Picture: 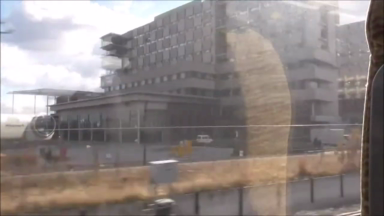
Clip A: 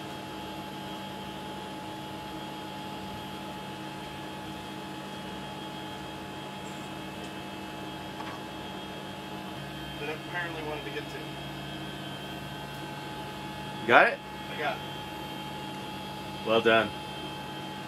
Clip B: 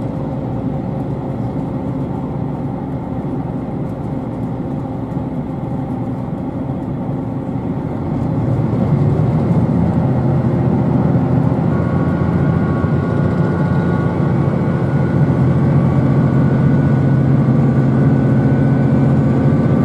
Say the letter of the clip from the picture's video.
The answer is B